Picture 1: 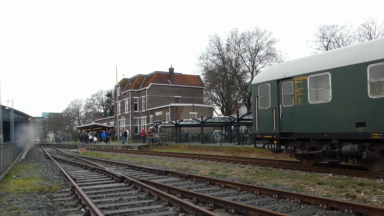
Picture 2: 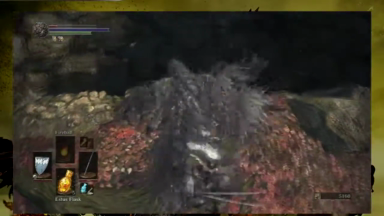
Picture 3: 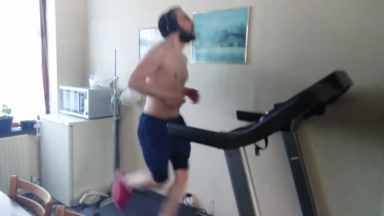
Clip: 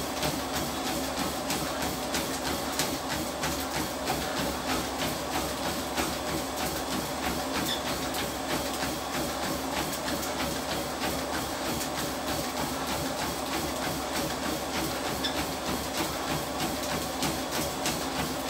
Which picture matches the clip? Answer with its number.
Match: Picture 3